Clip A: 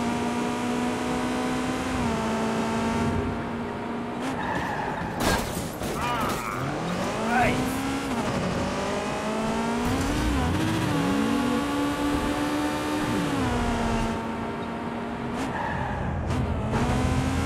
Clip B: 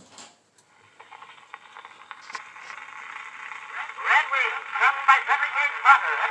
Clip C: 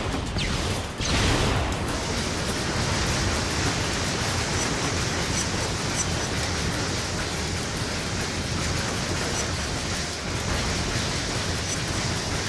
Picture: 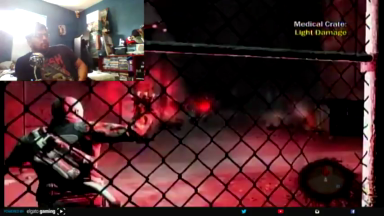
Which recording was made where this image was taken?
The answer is C